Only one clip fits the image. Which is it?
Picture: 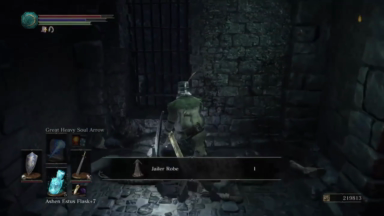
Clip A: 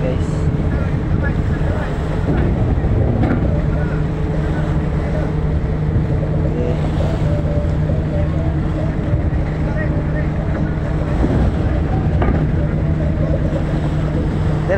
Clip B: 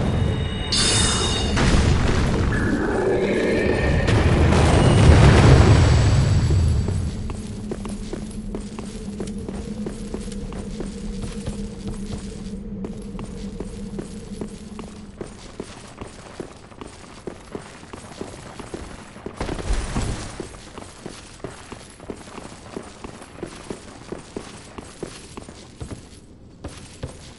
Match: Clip B